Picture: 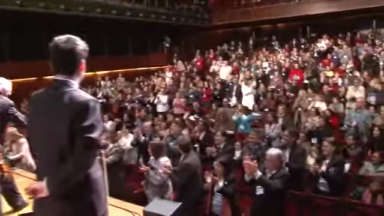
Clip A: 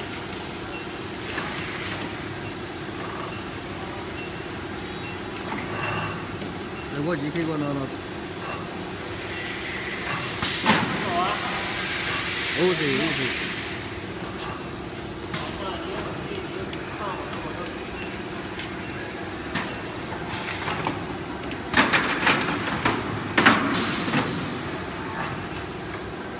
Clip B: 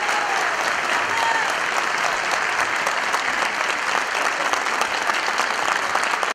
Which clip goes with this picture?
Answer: B